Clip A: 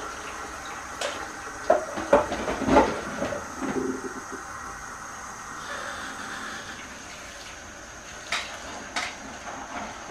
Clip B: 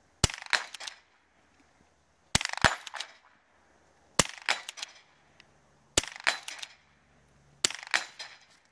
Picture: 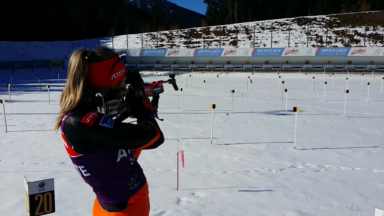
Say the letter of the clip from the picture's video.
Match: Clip B